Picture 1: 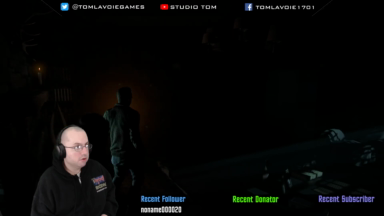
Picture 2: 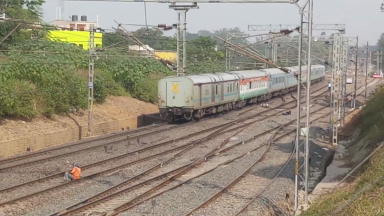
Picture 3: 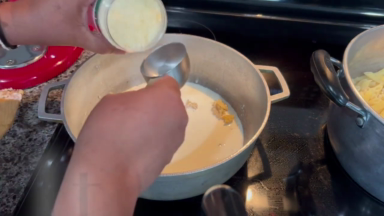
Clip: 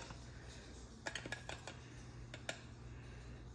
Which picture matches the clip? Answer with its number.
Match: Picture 3